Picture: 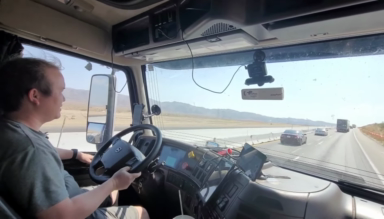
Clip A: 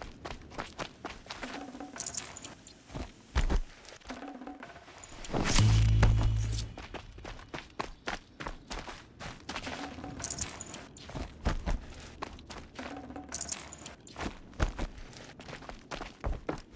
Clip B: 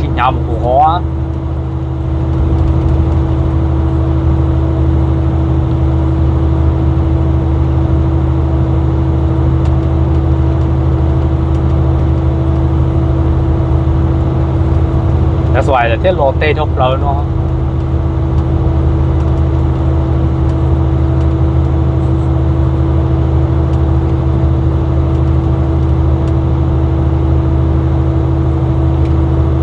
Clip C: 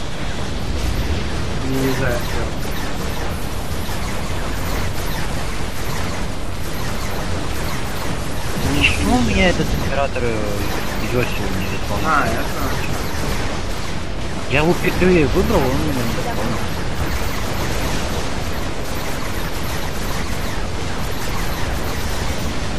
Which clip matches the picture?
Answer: B